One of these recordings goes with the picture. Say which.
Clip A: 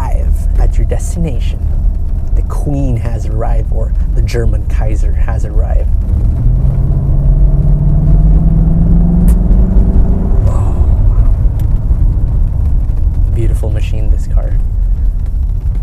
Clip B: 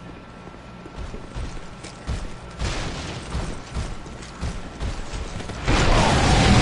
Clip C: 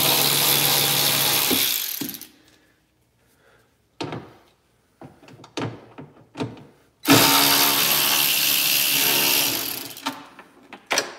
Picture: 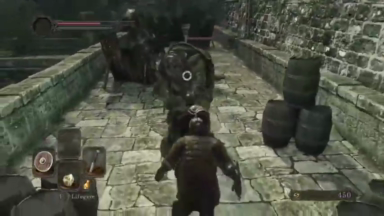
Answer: B